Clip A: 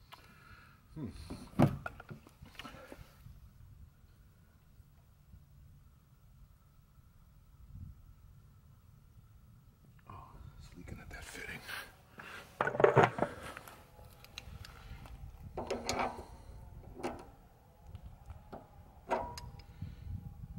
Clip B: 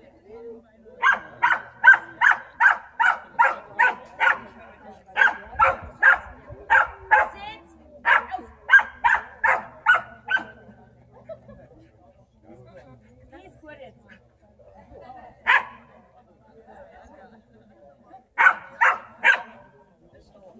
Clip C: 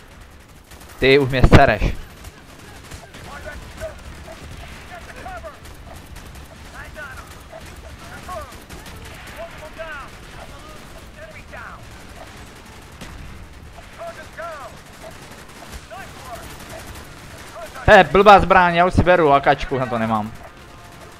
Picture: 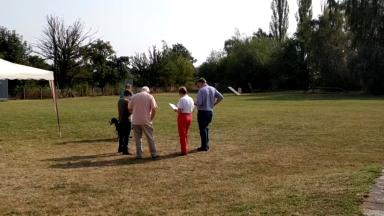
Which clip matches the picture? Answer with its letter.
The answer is B